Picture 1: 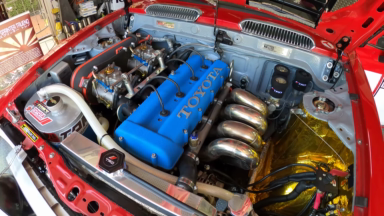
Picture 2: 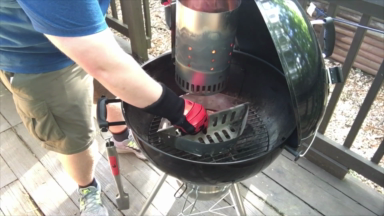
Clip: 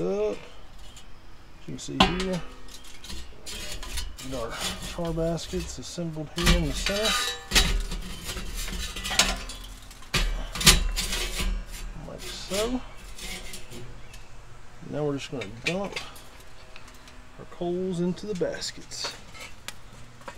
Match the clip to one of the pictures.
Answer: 2